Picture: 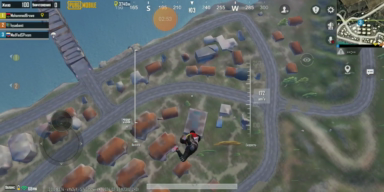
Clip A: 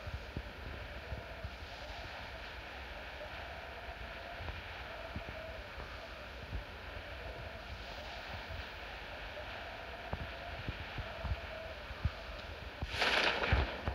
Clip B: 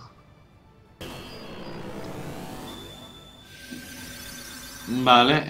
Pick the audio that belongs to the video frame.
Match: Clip A